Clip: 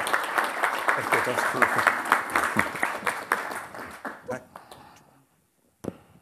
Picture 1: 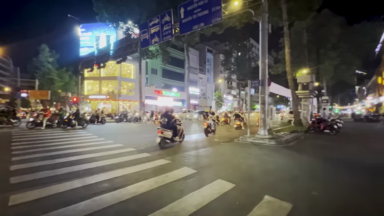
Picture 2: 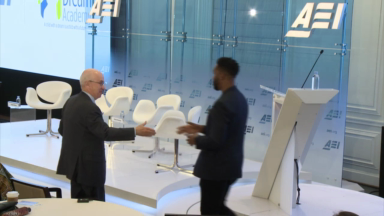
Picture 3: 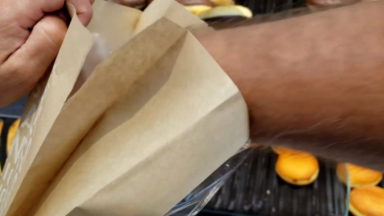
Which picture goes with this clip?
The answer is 2